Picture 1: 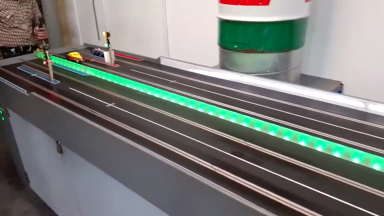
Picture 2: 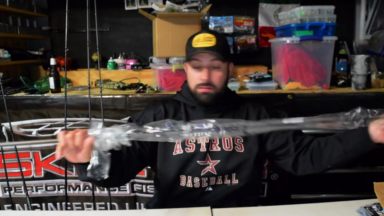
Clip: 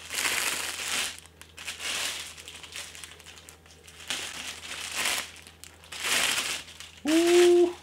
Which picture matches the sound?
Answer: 2